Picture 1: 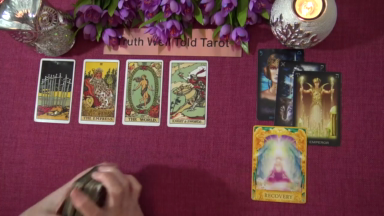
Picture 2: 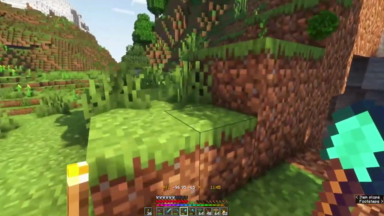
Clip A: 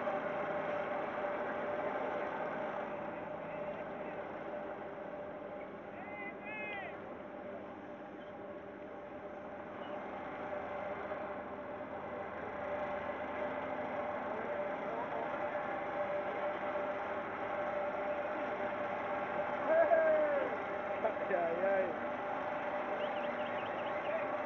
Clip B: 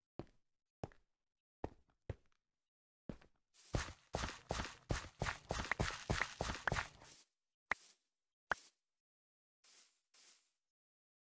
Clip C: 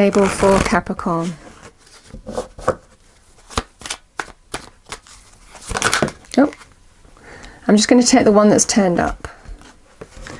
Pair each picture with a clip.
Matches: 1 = C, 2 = B